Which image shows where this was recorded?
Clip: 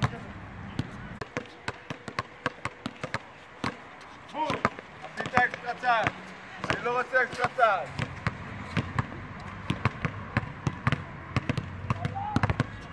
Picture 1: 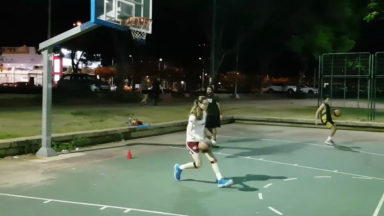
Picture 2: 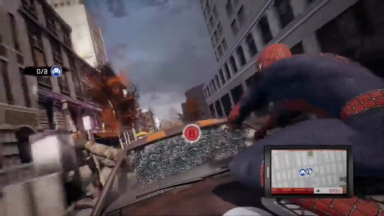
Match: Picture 1